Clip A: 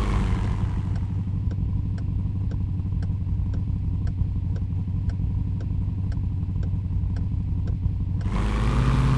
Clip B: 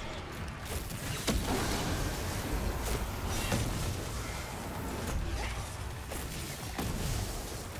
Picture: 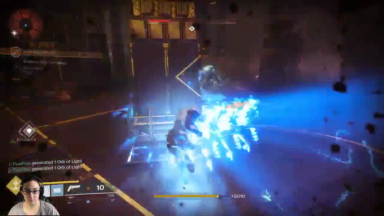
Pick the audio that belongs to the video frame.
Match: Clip B